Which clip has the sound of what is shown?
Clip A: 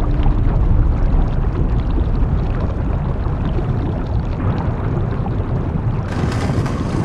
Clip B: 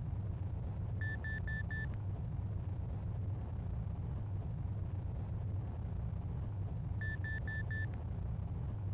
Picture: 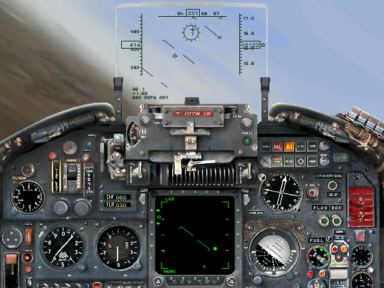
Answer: B